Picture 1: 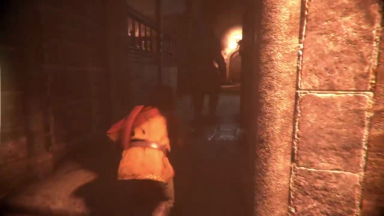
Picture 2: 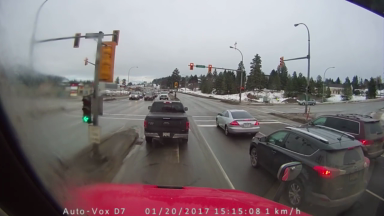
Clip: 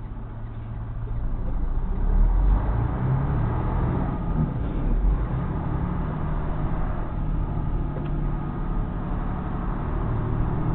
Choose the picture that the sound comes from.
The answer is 2